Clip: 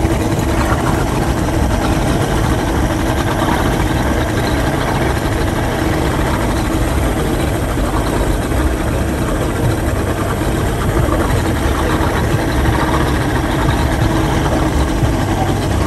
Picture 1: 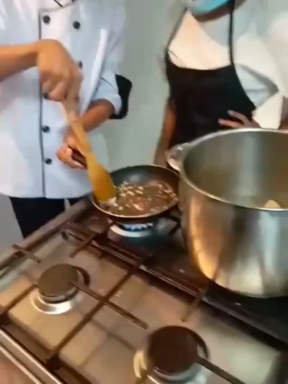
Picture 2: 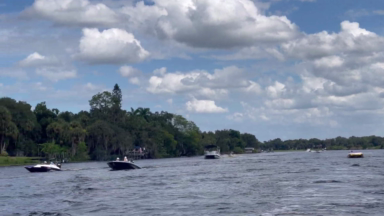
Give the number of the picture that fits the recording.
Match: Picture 2